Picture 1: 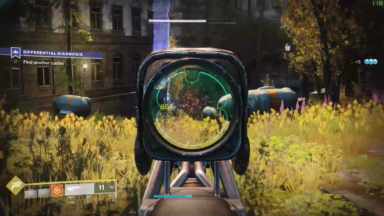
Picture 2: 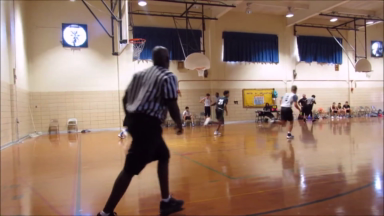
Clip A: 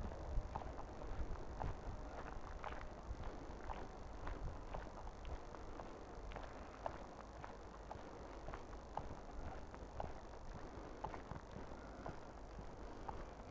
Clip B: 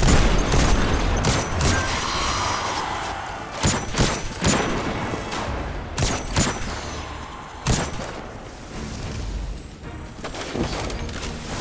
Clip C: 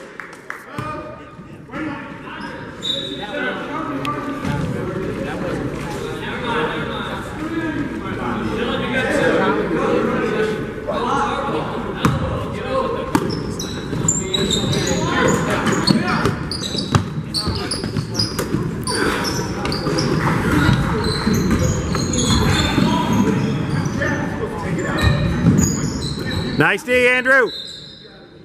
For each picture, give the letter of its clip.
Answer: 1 B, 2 C